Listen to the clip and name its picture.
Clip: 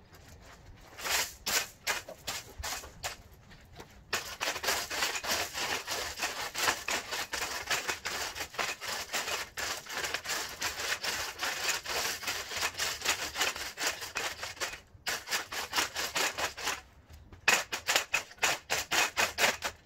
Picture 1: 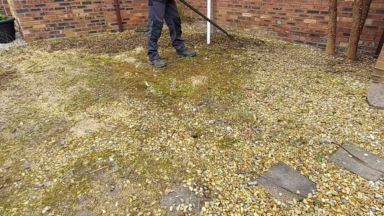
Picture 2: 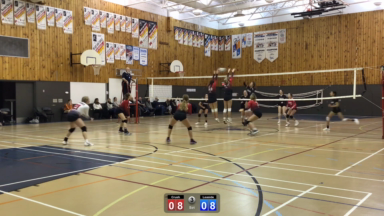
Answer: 1